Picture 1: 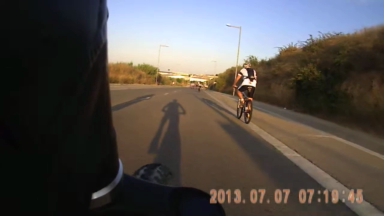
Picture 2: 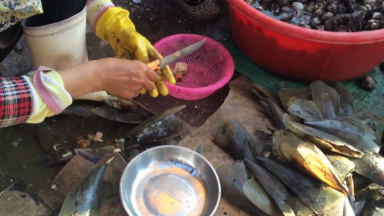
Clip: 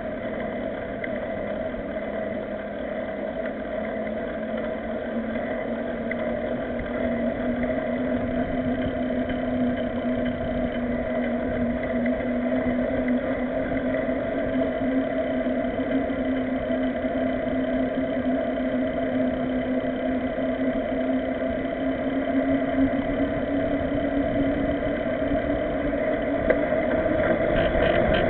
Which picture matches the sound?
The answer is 1